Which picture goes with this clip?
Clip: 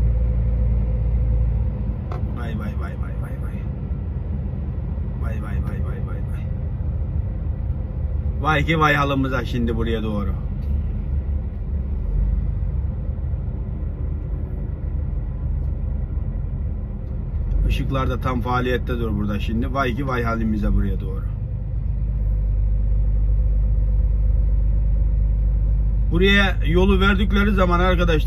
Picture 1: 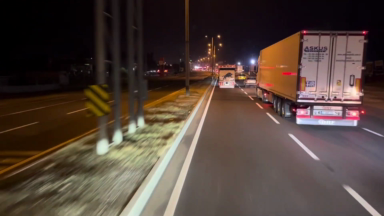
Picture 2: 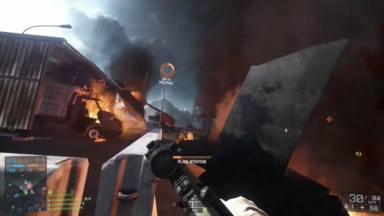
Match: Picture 1